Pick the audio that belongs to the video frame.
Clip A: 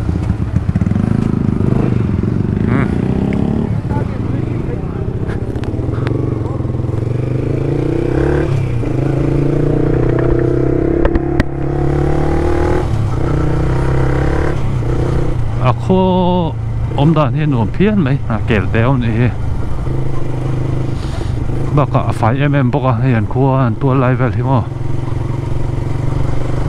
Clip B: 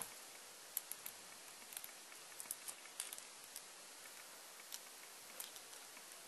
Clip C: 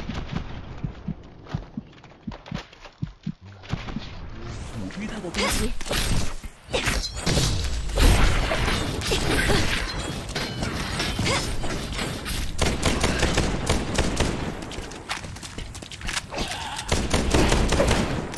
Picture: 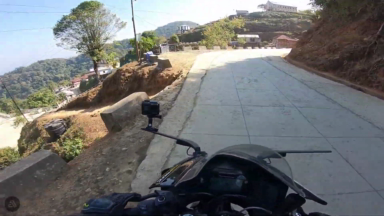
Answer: A